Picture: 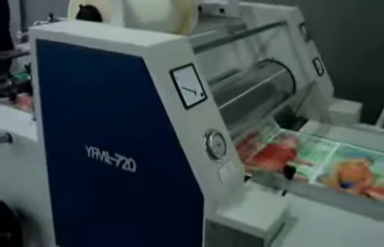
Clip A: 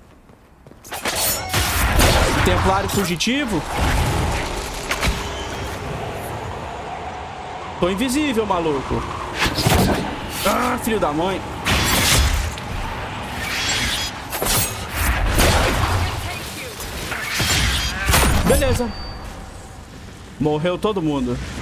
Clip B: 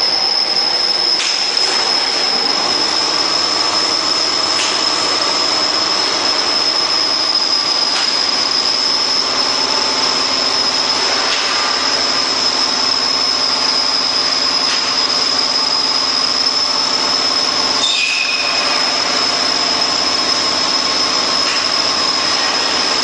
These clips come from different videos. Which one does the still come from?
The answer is B